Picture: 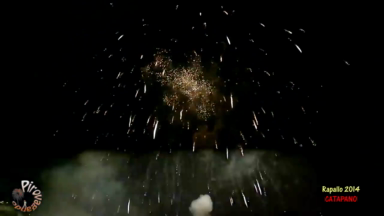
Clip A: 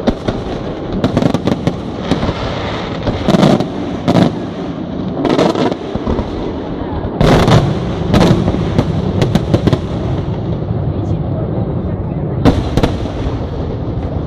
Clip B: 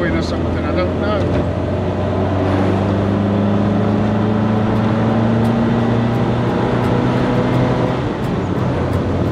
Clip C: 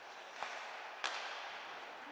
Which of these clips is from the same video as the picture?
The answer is A